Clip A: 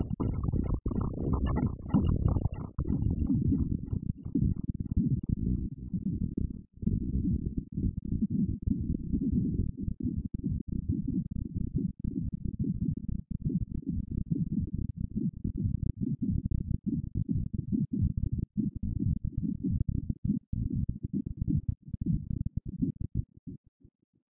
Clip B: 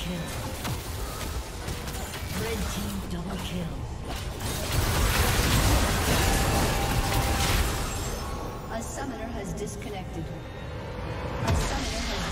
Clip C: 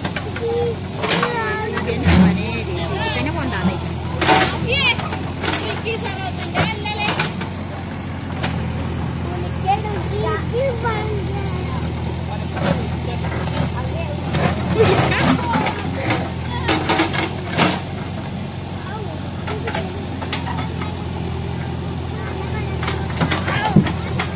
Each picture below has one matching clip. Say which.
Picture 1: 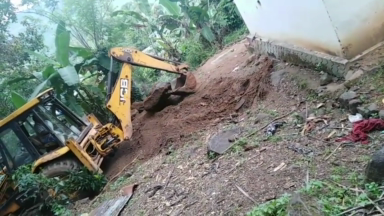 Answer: C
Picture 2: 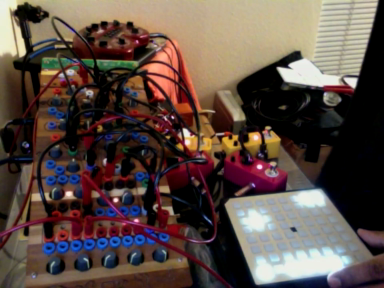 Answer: A